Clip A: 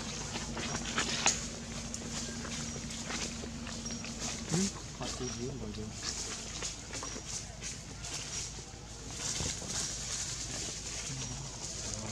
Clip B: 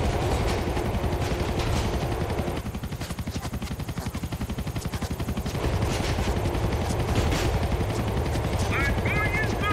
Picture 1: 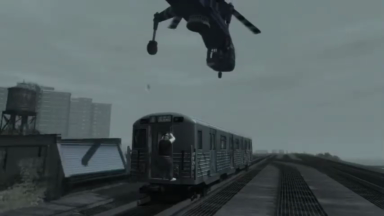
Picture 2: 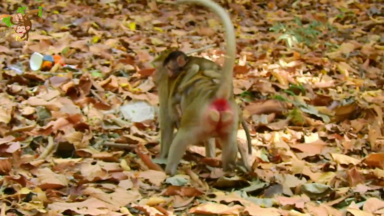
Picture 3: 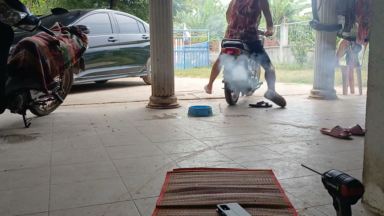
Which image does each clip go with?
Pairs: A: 2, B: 1